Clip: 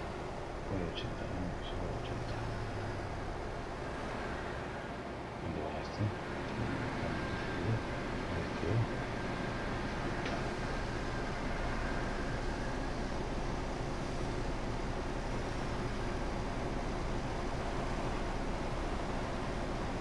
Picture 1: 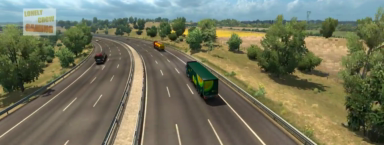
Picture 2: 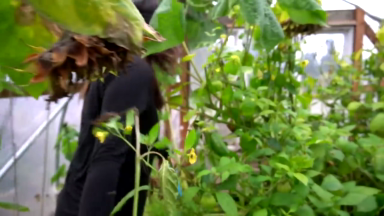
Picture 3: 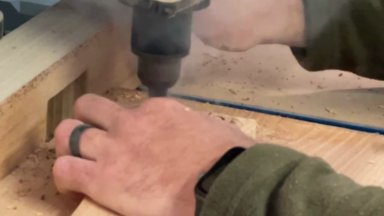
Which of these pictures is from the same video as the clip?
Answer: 1